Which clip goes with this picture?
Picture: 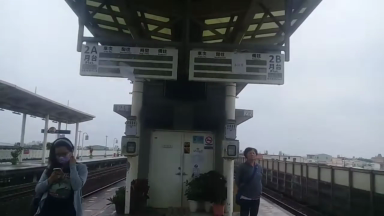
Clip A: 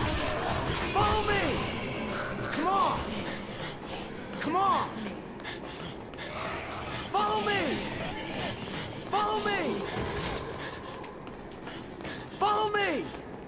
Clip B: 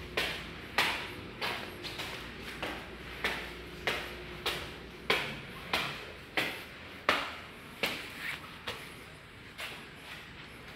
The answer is B